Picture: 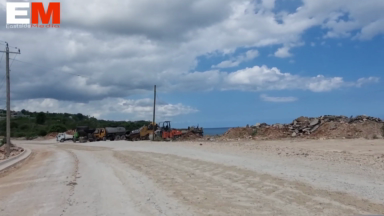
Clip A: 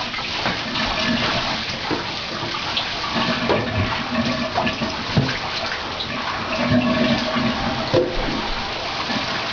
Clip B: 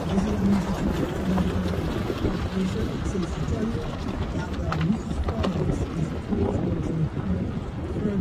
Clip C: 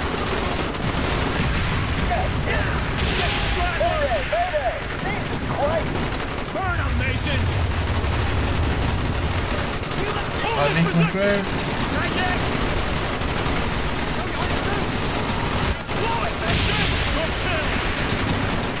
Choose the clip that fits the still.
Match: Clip B